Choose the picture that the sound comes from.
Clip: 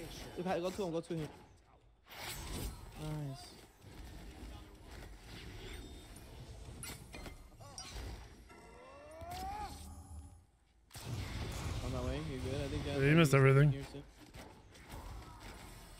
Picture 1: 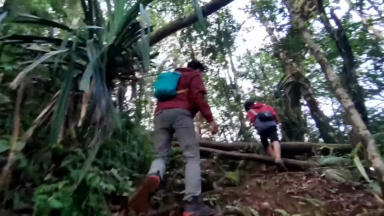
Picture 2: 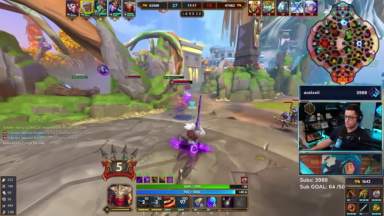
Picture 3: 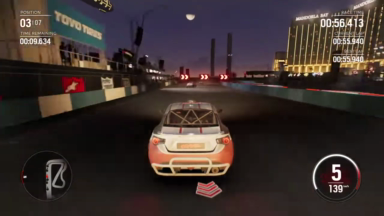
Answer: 2